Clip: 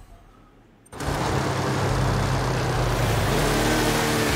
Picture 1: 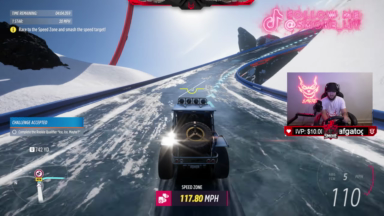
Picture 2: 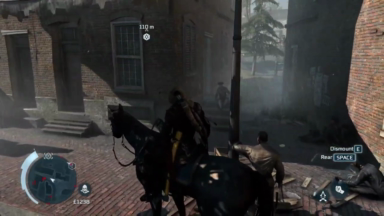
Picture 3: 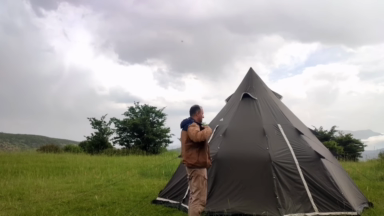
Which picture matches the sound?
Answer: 1